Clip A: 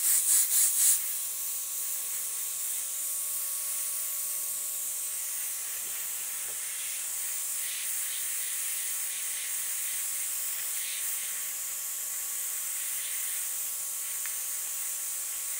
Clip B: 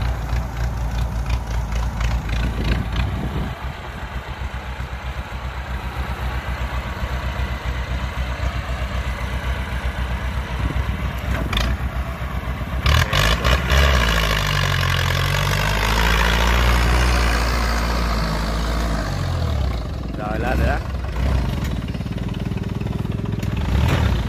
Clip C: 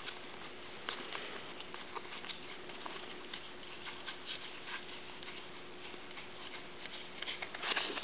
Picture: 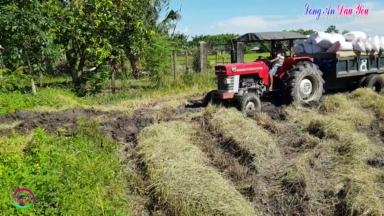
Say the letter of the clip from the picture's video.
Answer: B